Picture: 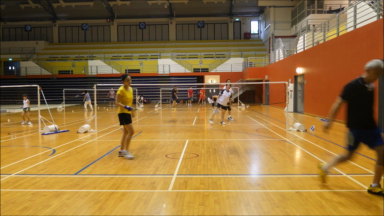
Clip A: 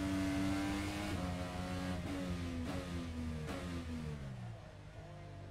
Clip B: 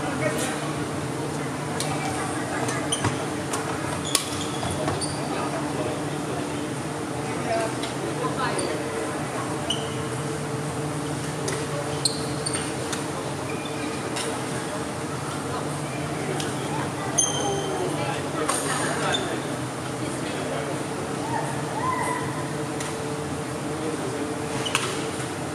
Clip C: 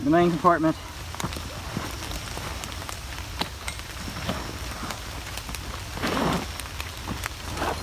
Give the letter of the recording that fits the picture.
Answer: B